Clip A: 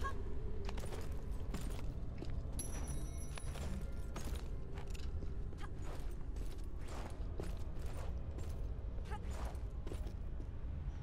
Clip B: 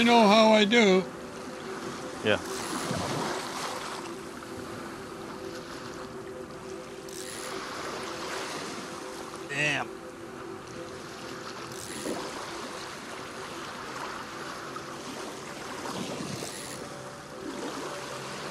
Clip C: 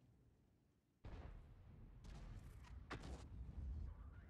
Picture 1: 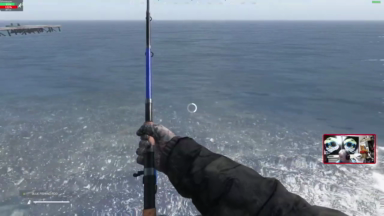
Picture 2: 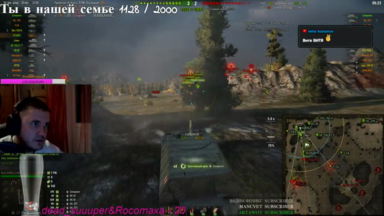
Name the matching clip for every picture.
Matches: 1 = B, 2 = C